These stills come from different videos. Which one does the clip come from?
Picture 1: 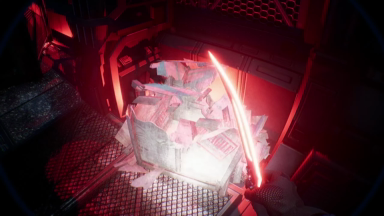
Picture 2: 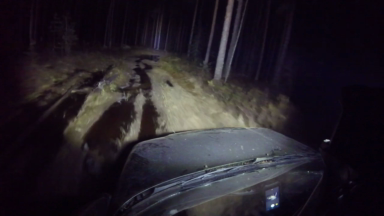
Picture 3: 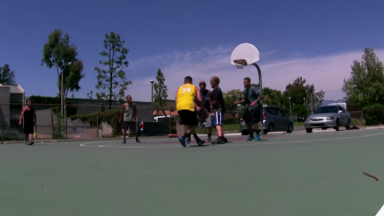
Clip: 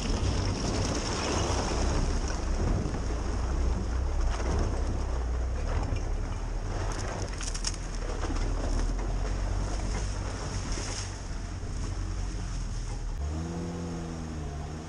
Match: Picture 2